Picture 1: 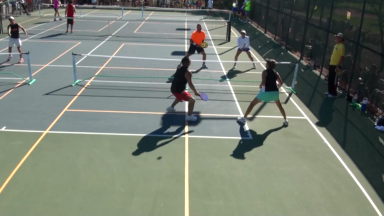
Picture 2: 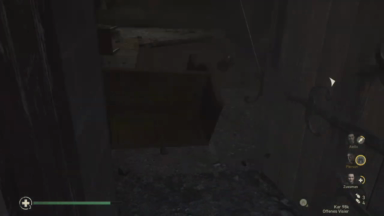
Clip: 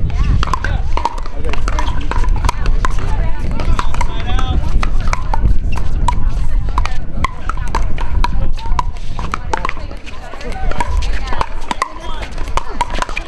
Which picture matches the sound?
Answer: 1